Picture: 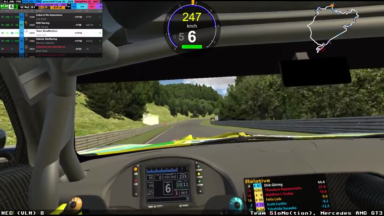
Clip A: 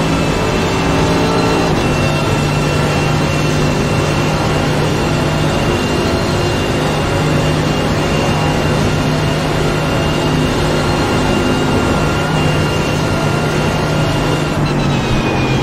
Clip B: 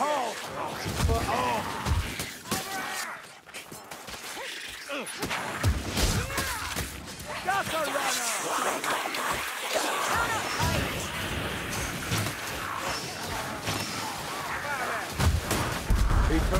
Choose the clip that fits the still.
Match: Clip A